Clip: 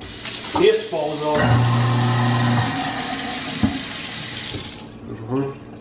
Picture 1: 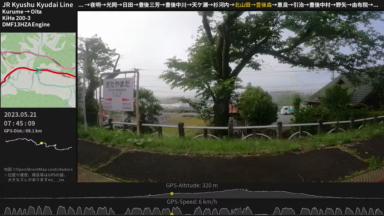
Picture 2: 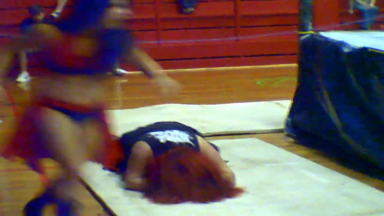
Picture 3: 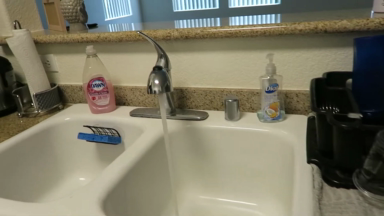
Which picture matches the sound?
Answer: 3